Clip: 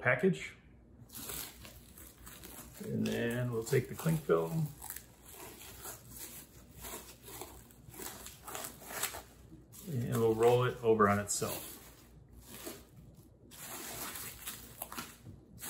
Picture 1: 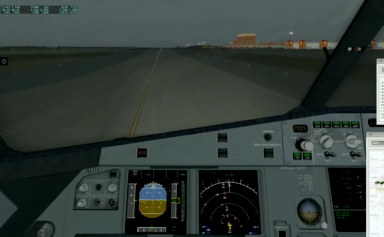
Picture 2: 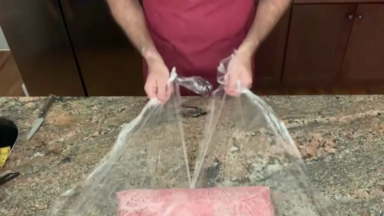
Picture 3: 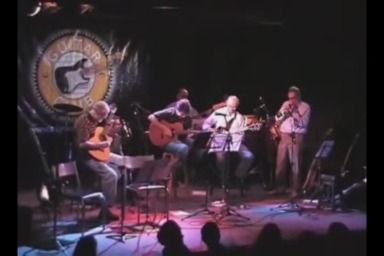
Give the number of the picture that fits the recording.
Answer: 2